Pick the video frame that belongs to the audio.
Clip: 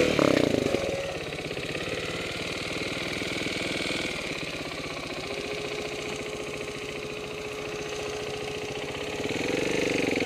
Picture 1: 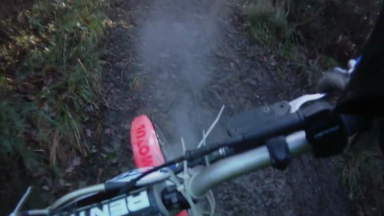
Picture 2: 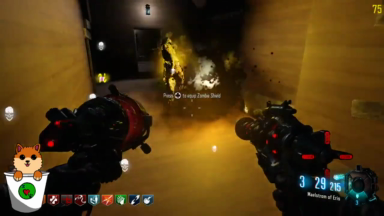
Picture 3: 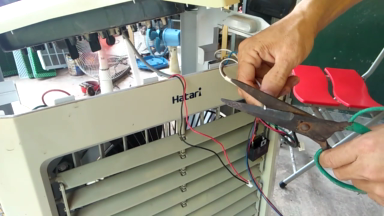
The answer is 1